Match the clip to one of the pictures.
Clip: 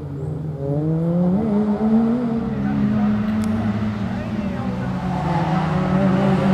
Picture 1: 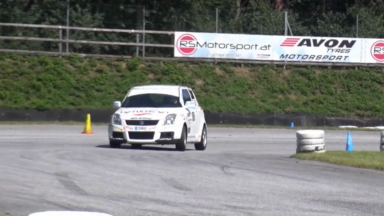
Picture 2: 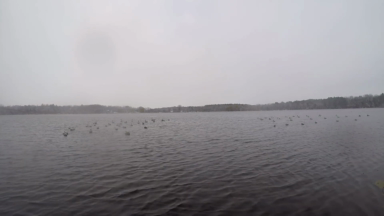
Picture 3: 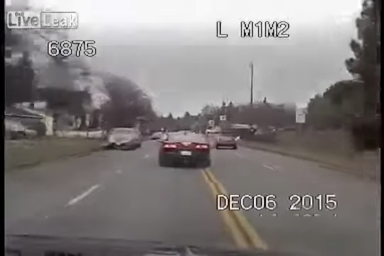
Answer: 1